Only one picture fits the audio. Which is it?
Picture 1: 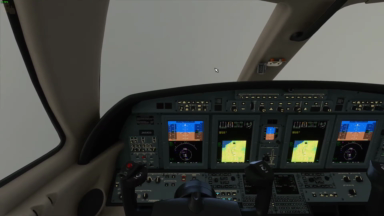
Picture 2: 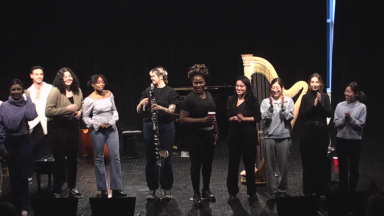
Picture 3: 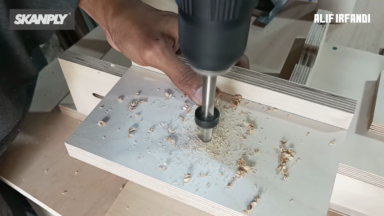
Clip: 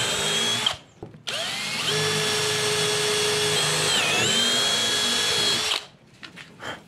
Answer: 3